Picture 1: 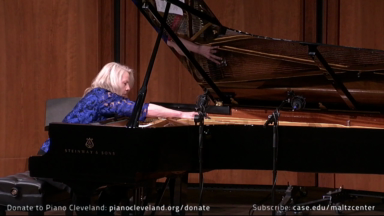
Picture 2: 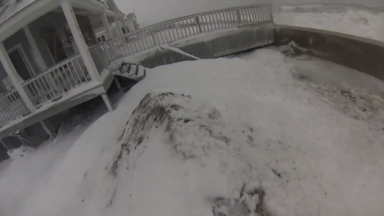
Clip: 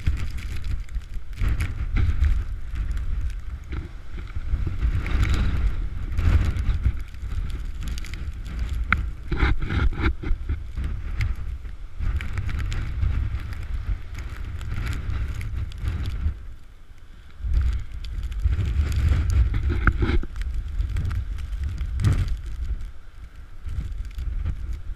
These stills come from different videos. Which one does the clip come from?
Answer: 2